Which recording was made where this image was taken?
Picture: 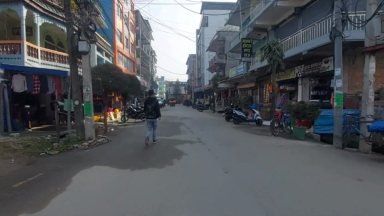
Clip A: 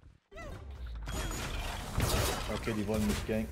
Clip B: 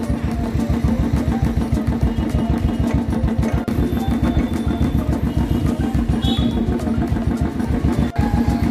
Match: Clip B